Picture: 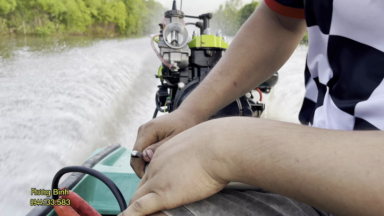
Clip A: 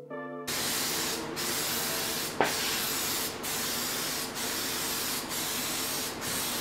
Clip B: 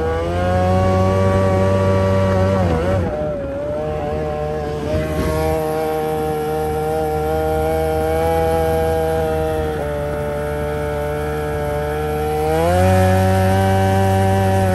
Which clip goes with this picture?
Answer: B